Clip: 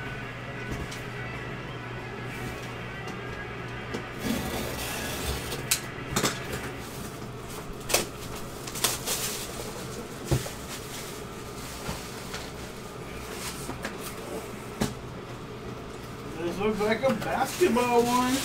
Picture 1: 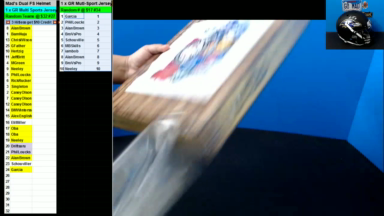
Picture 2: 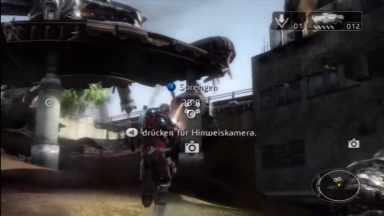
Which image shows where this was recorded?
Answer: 1